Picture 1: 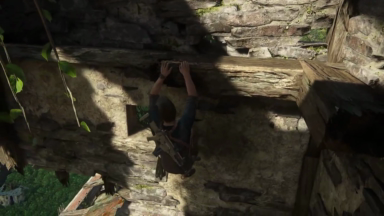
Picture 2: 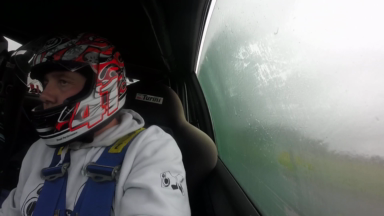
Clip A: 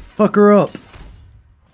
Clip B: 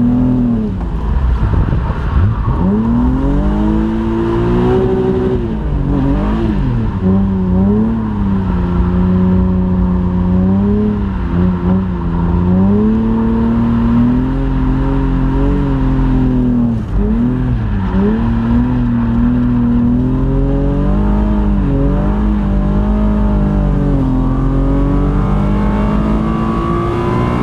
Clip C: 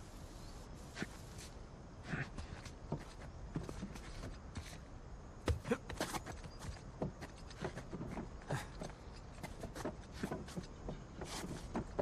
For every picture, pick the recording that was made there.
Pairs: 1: C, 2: B